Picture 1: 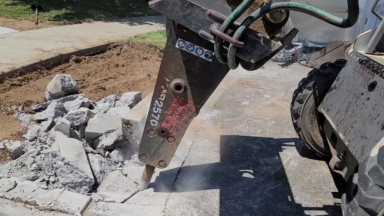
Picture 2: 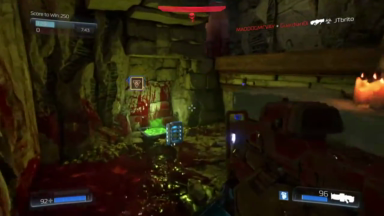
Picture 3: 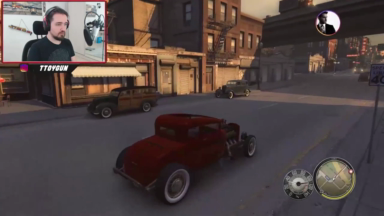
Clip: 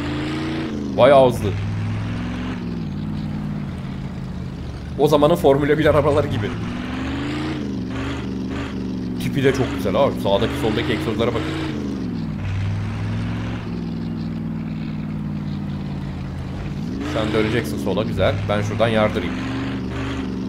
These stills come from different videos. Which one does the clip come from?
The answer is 3